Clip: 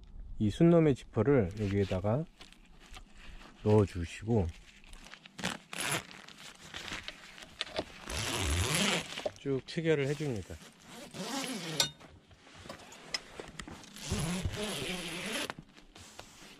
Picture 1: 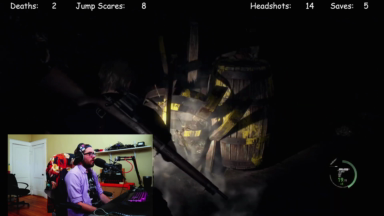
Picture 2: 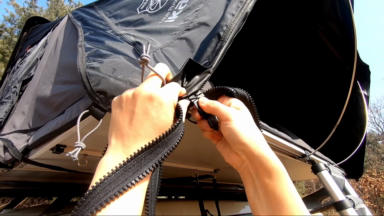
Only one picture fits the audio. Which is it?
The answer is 2